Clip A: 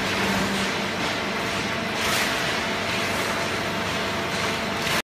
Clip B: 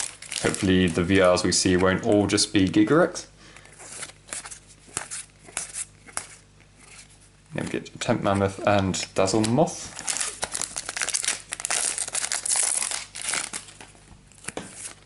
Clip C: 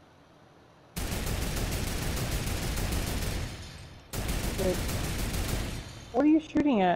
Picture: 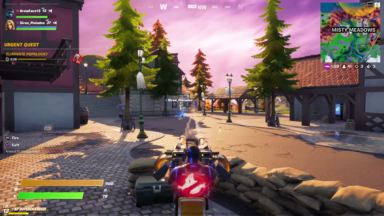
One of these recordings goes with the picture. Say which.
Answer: C